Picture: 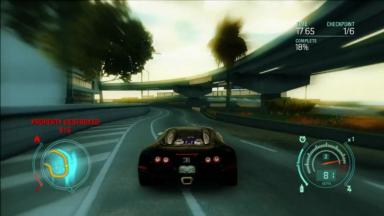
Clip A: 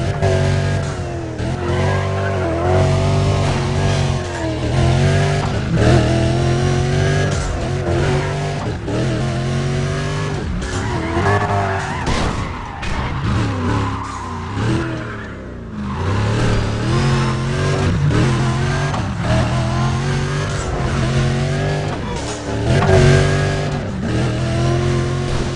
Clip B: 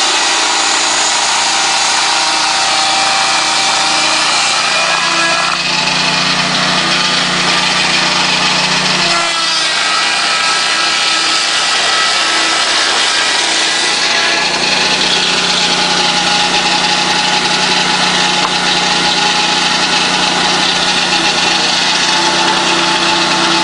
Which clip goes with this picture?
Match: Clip A